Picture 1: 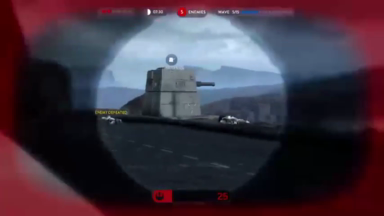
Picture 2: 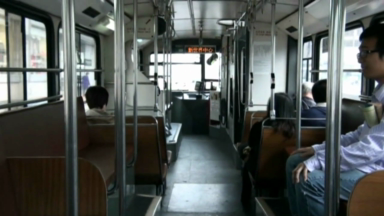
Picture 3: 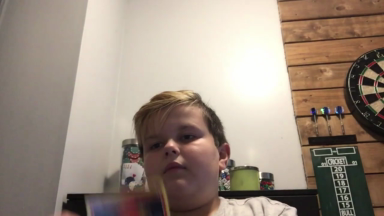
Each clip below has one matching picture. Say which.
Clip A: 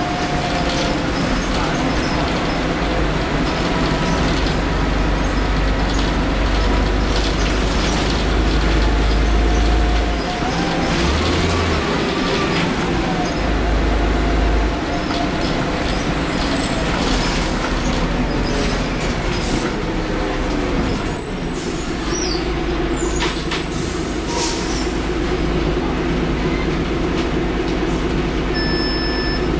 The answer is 2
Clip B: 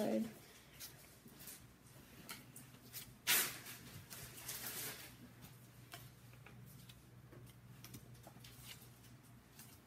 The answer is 3